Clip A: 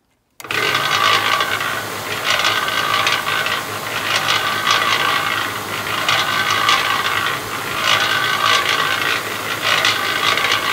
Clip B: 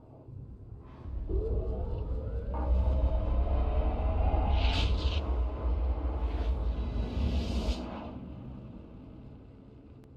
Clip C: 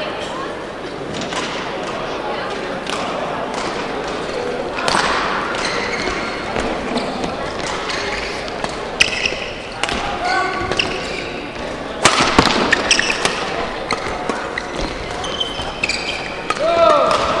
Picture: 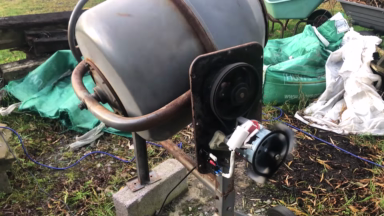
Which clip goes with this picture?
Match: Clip A